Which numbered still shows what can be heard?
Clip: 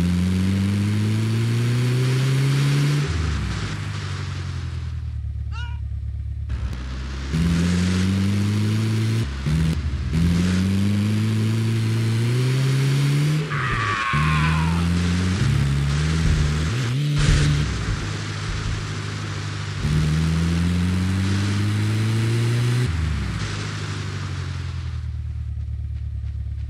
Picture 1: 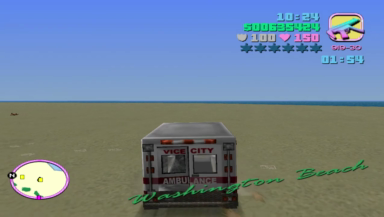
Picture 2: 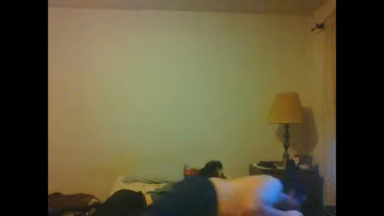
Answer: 1